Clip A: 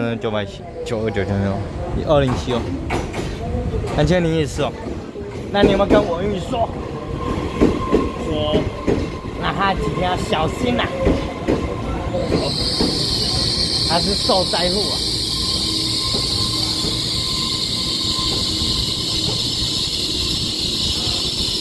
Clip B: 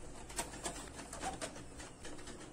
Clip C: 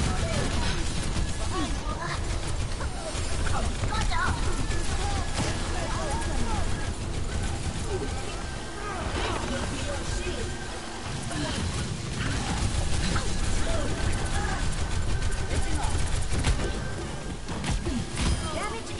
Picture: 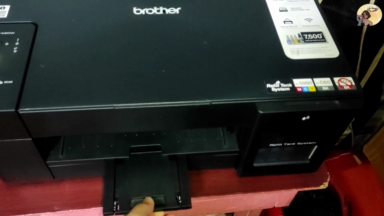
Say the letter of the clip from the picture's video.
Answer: B